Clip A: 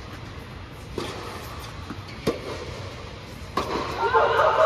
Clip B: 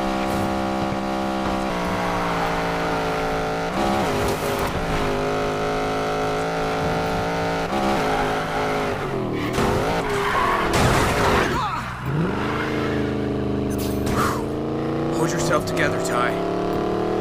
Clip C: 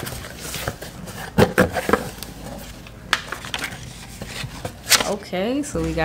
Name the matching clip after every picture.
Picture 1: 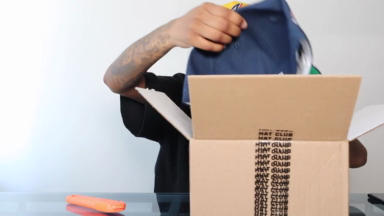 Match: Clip C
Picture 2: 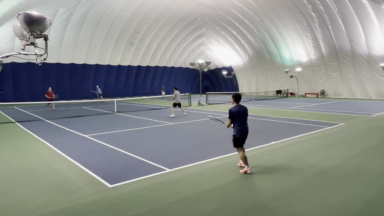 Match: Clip A